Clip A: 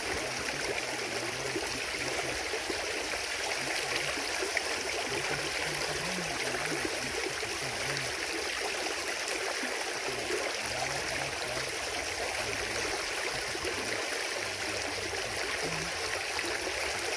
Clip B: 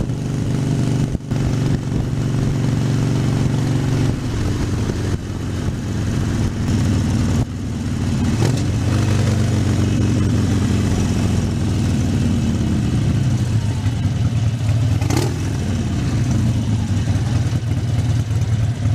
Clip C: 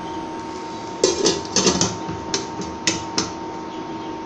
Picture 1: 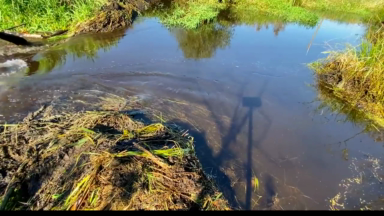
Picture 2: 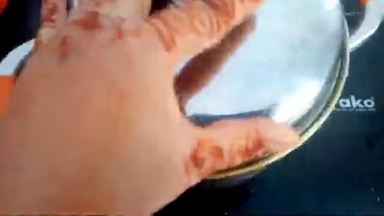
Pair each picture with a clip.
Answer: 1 A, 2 C